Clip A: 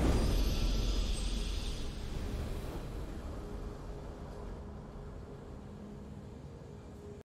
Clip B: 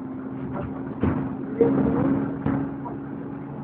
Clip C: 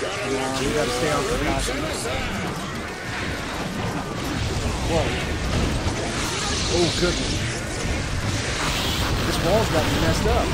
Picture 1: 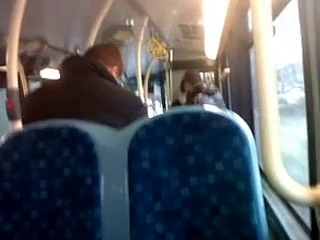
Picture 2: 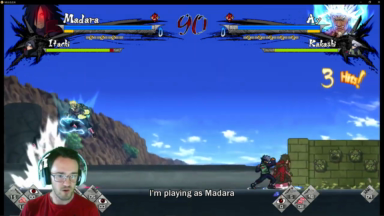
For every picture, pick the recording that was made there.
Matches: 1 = B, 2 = C